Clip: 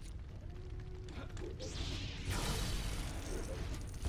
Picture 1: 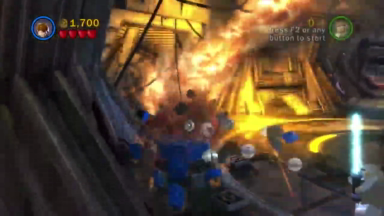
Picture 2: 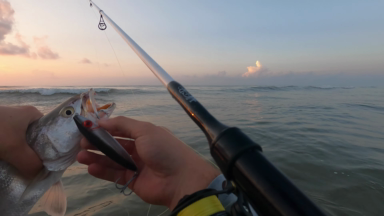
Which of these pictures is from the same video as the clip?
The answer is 1